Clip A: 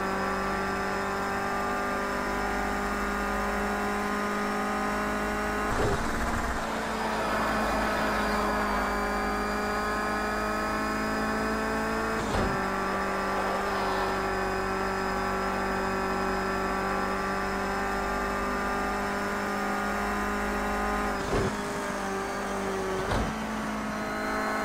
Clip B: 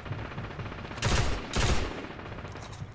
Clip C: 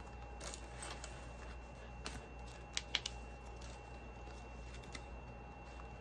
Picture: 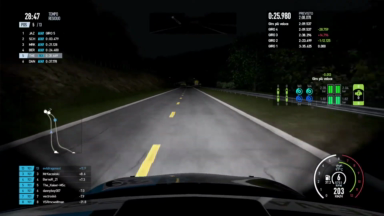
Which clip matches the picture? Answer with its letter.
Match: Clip A